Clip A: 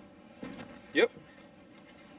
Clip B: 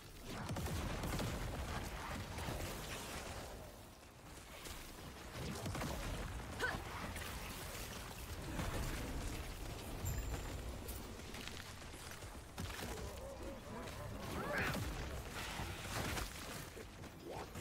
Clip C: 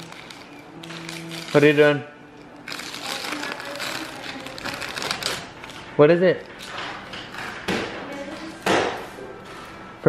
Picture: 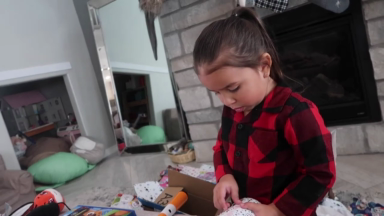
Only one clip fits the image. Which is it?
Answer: C